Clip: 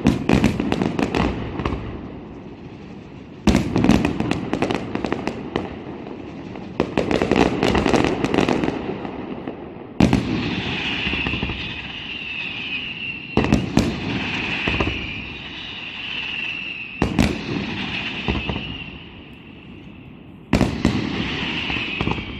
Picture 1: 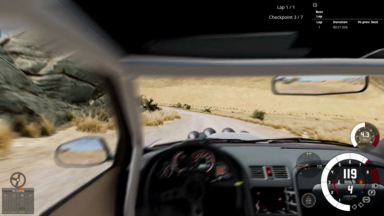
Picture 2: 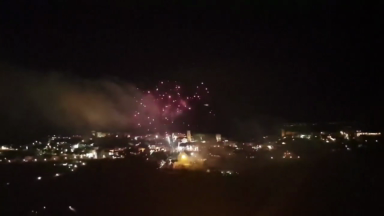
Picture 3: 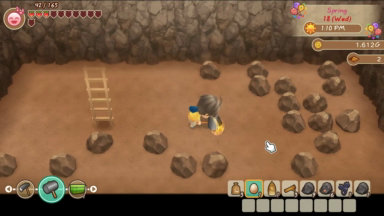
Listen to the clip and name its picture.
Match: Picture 2